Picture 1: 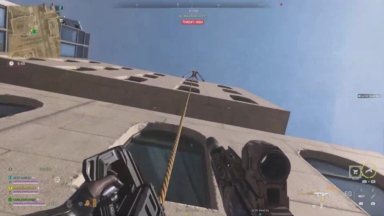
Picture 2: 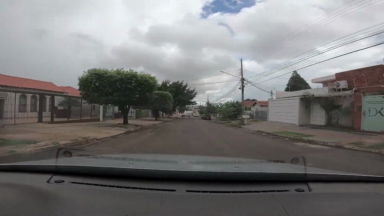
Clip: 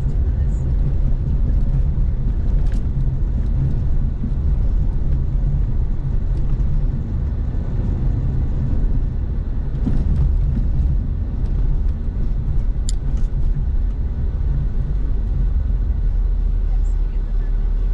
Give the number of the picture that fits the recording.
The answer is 2